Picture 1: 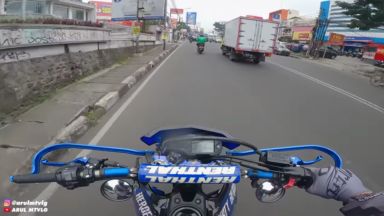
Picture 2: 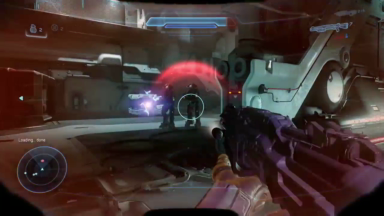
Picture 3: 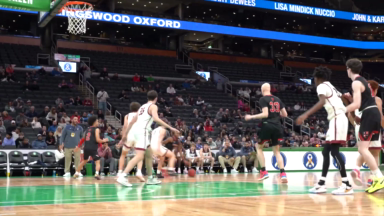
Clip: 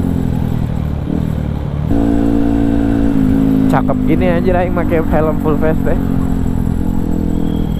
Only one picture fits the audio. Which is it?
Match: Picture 1